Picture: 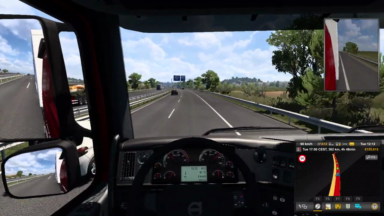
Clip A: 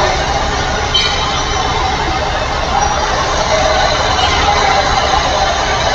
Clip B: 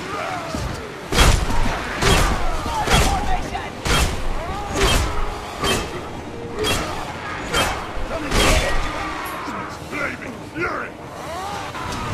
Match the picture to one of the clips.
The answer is A